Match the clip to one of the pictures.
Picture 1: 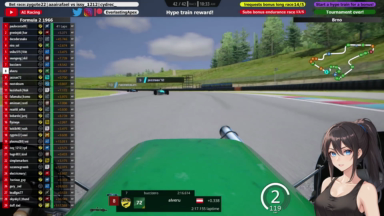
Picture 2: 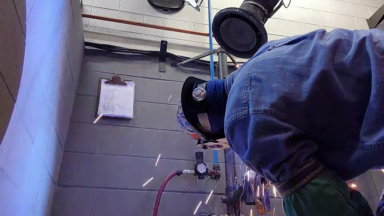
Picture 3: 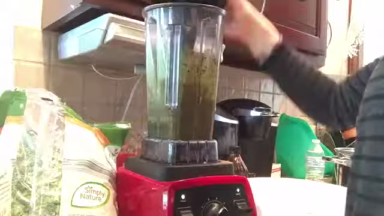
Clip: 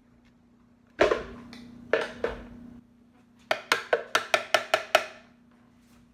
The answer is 3